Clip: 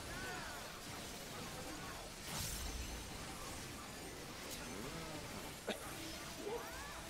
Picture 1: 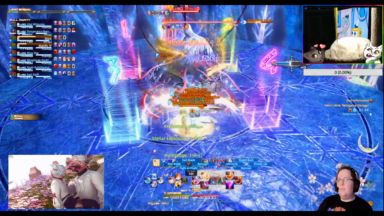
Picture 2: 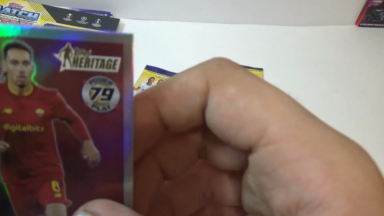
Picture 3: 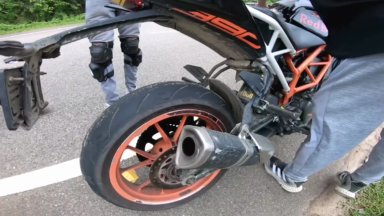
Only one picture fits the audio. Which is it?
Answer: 1